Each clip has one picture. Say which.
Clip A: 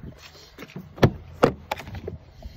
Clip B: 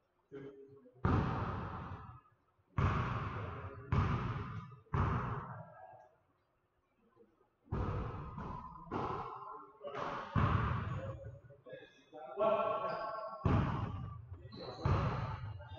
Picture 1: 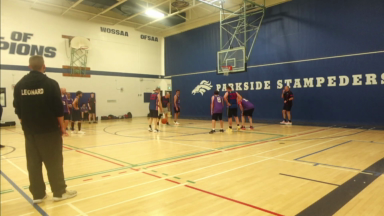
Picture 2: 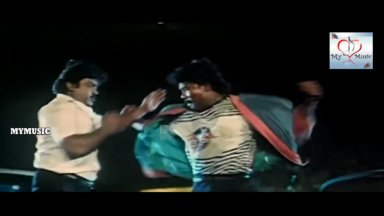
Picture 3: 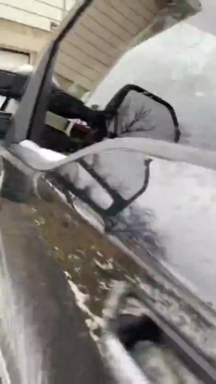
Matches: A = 3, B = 1